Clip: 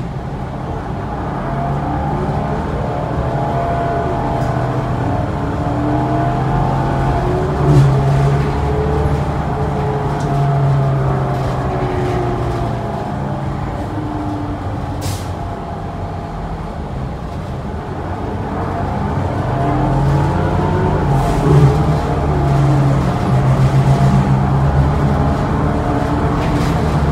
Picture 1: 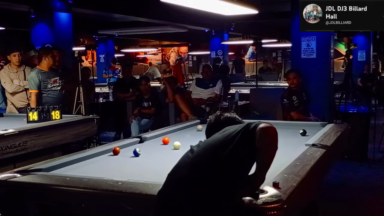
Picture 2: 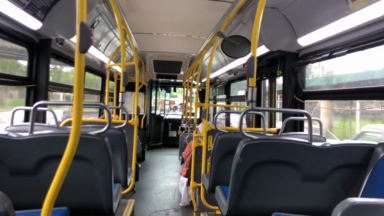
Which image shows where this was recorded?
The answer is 2